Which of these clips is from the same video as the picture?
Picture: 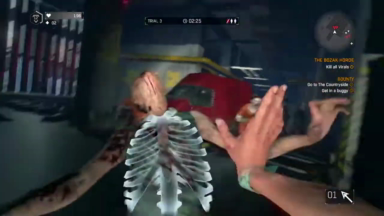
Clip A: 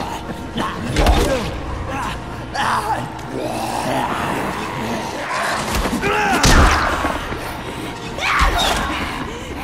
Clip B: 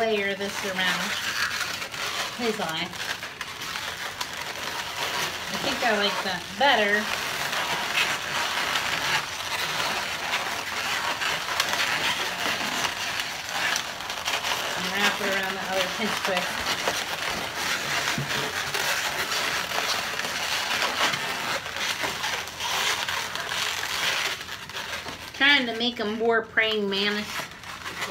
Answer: A